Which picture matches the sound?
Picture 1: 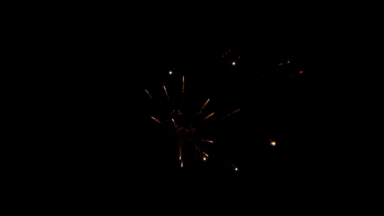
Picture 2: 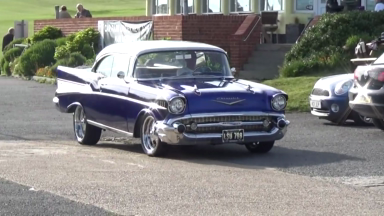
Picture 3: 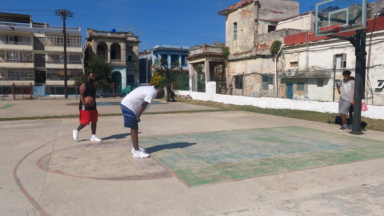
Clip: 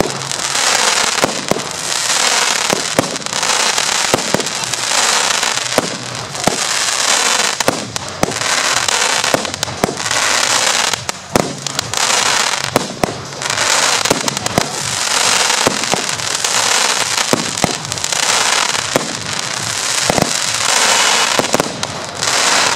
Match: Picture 1